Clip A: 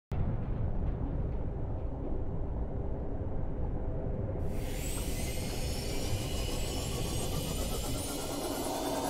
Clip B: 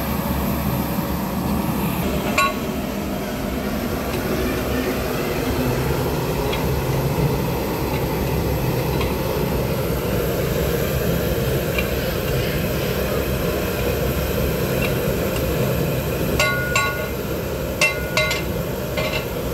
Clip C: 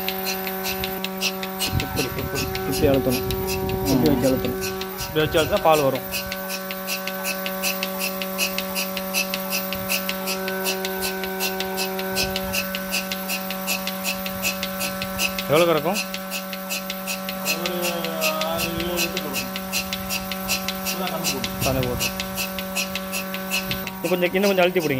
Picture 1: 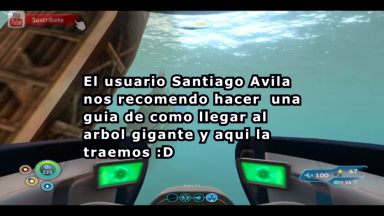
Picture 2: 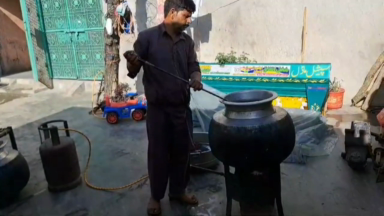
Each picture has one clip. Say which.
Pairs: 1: A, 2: B